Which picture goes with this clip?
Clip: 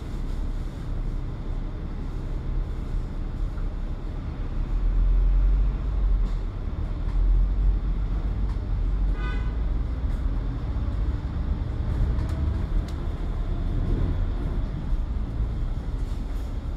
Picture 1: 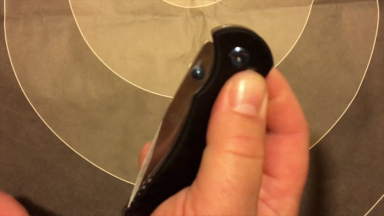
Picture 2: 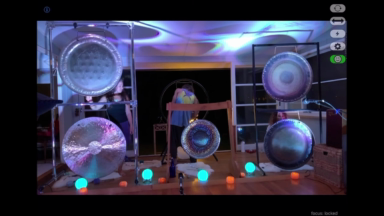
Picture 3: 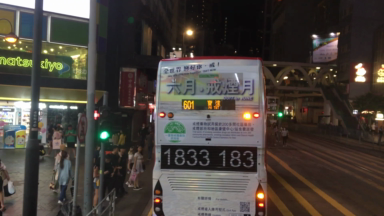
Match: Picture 3